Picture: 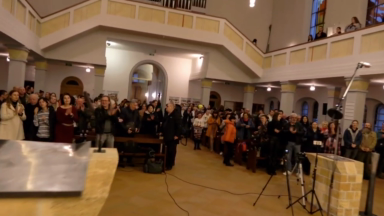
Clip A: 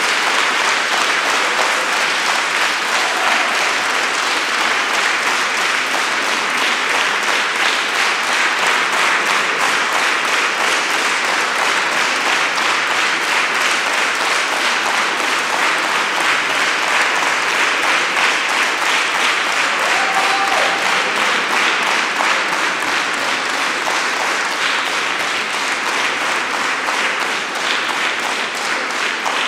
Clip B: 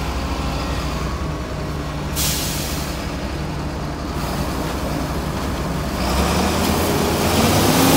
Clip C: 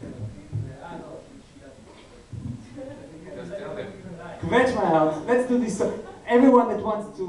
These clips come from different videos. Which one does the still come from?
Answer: A